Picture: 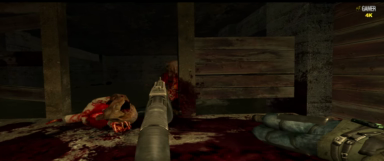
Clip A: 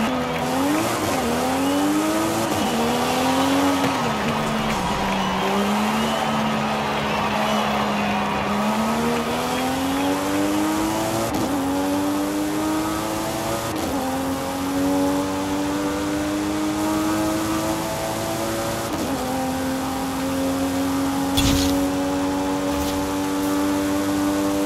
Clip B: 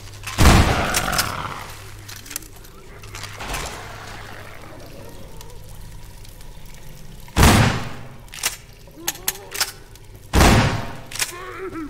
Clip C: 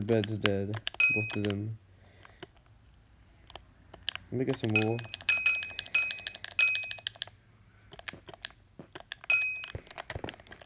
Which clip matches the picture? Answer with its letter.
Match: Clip B